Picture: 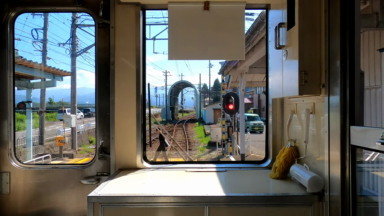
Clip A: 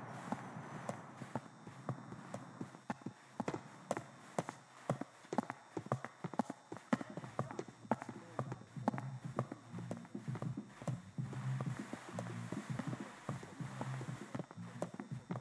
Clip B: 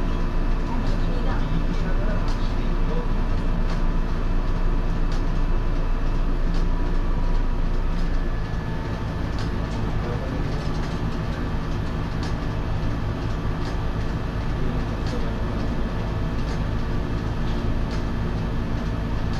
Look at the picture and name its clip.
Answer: B